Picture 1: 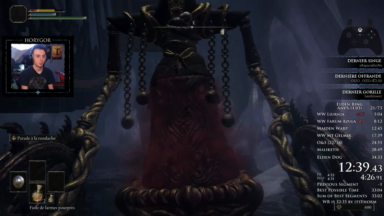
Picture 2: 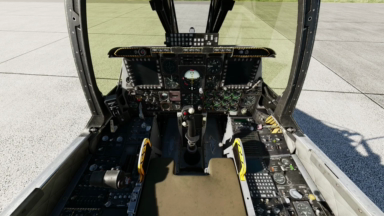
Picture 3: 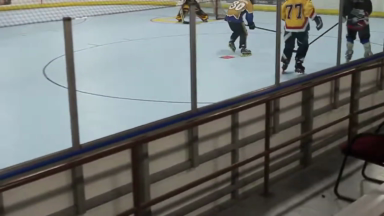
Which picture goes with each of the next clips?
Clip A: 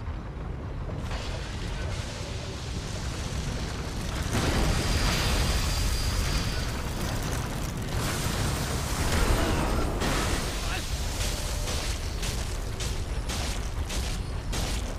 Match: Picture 1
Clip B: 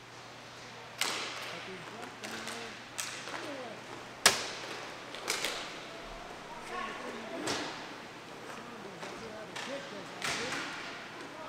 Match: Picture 3